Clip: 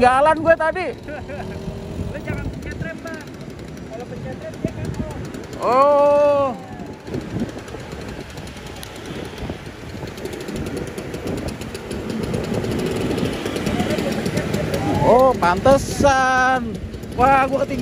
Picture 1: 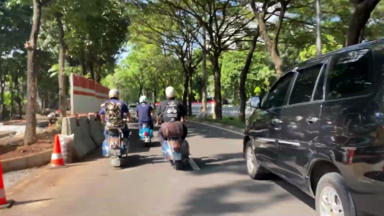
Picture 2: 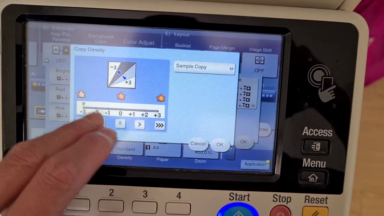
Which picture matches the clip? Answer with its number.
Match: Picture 1